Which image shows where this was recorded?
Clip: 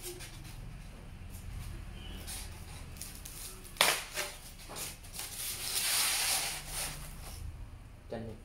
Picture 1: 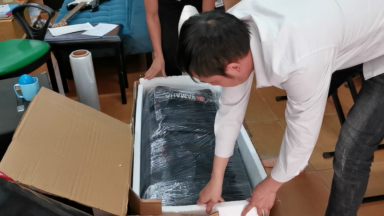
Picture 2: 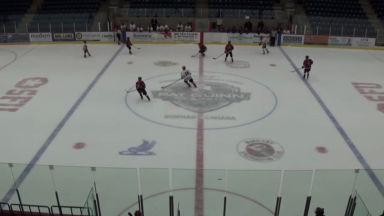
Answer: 1